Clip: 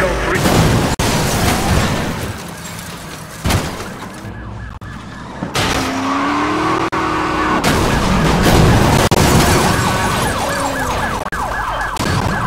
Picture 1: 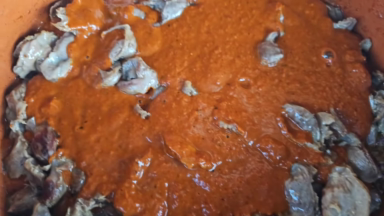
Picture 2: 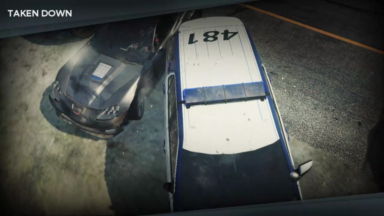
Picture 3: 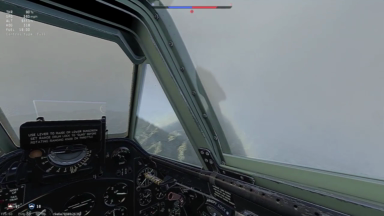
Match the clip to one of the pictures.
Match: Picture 2